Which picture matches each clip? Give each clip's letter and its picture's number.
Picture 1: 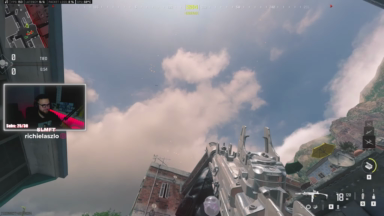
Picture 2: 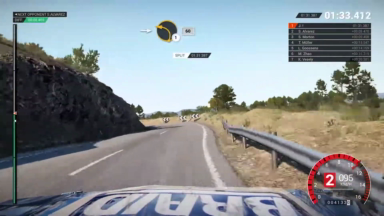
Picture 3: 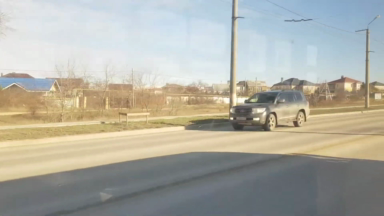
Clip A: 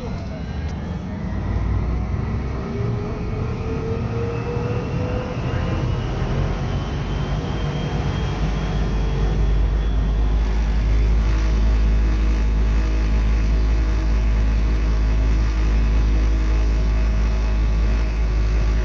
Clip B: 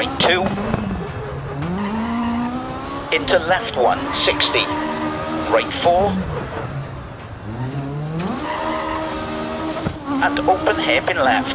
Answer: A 3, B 2